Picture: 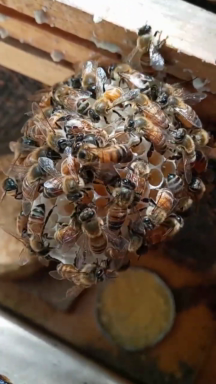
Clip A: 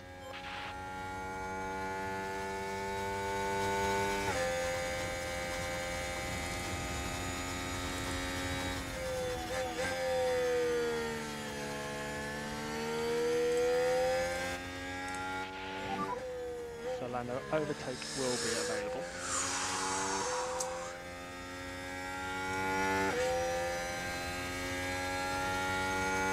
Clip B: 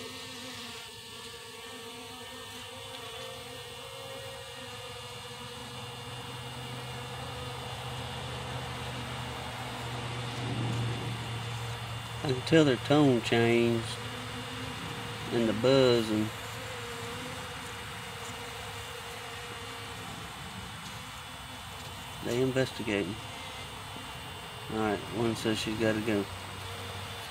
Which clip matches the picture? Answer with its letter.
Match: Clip B